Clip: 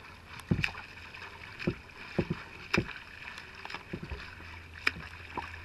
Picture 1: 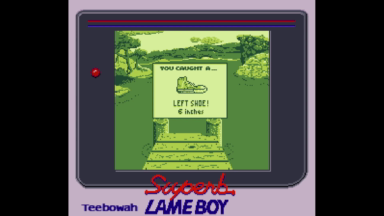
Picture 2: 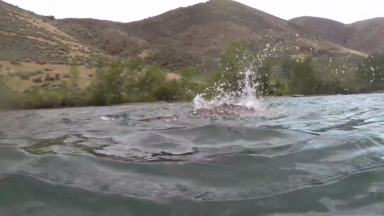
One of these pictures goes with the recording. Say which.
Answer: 2